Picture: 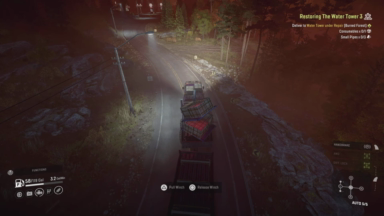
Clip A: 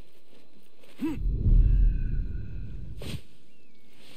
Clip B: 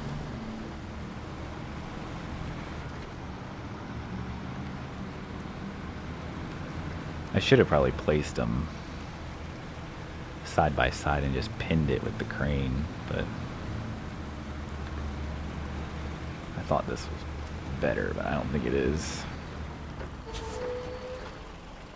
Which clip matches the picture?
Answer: B